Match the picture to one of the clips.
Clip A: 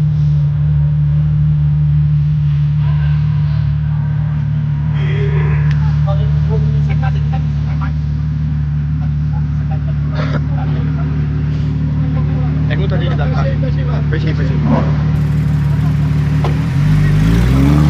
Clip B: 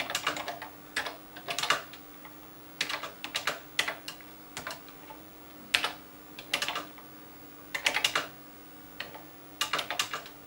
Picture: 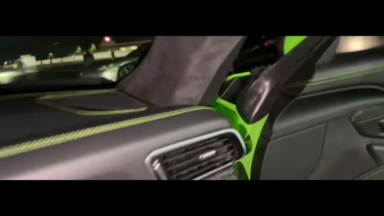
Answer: A